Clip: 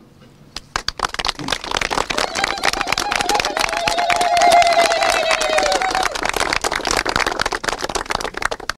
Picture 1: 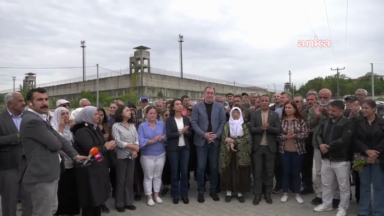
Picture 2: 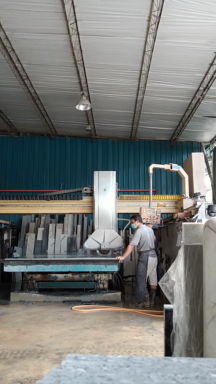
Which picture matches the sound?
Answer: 1